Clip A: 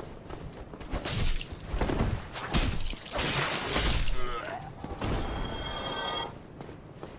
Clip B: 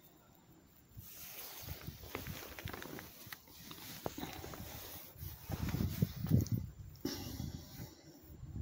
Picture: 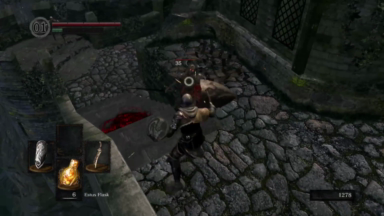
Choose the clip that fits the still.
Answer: A